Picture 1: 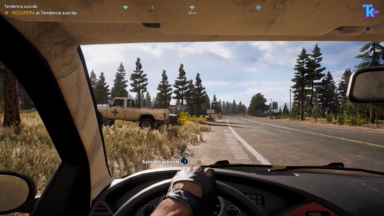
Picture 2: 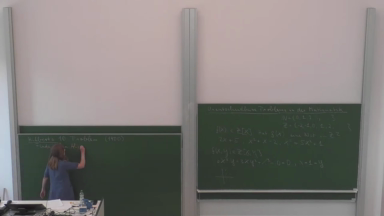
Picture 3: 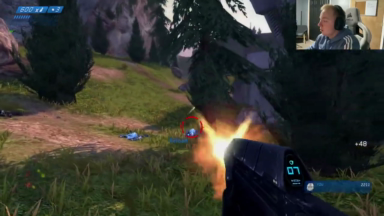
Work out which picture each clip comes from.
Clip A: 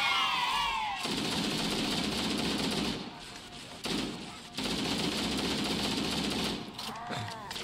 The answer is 3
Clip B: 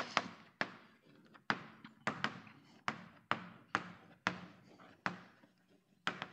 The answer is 2